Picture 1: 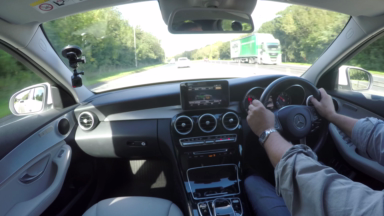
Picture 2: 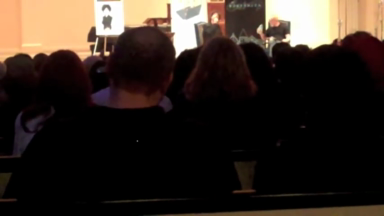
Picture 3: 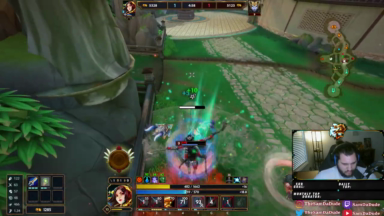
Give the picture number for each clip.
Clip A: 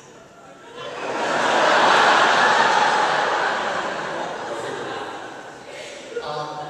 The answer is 2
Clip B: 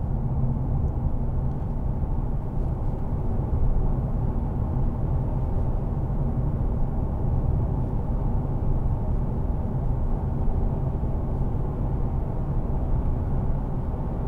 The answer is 1